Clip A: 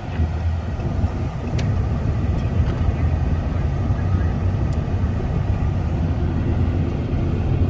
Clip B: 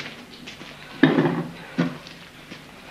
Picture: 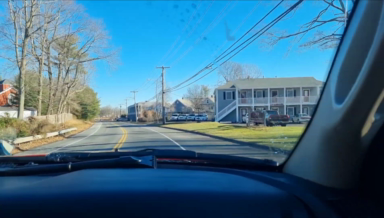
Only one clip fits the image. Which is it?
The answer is A